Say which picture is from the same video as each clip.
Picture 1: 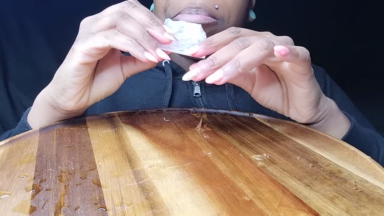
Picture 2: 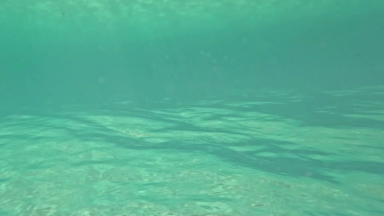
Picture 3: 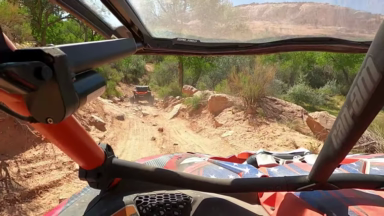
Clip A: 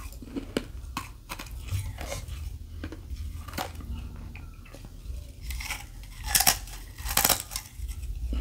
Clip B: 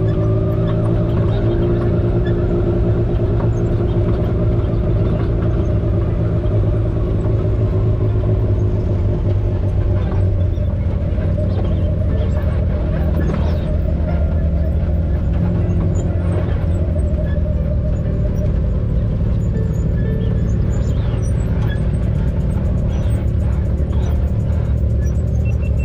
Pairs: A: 1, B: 3